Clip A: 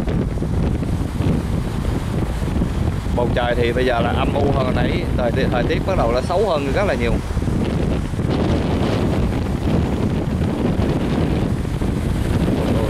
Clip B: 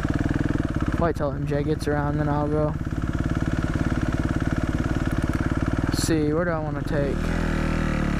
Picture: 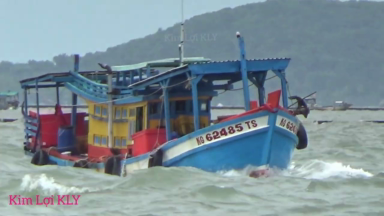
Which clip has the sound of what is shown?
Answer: A